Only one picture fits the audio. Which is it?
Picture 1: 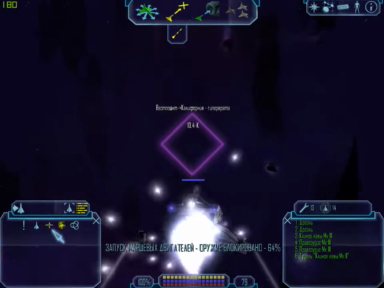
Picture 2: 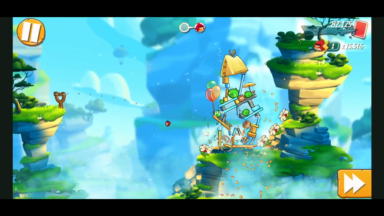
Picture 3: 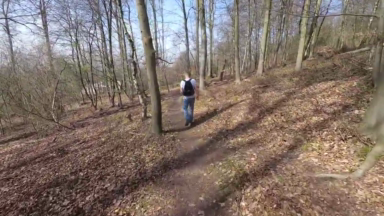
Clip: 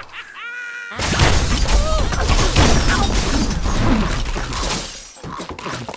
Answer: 2